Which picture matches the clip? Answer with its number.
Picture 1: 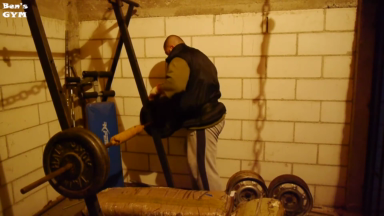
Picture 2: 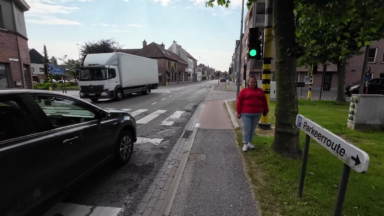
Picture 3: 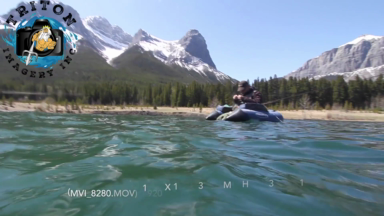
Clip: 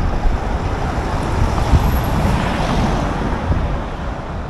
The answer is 2